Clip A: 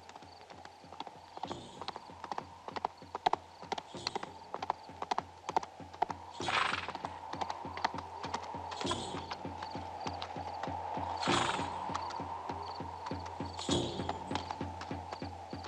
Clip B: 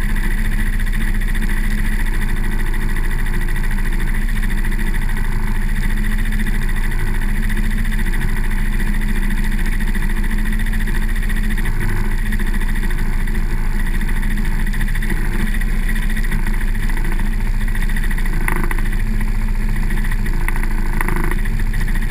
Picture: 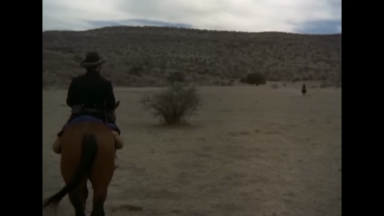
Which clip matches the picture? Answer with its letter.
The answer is A